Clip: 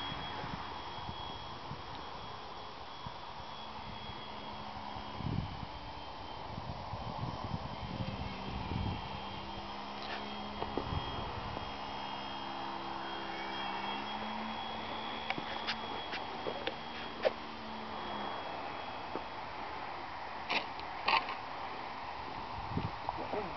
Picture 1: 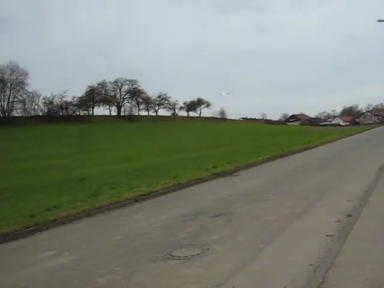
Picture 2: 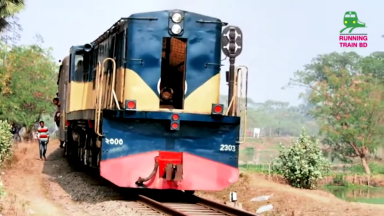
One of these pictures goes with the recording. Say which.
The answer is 1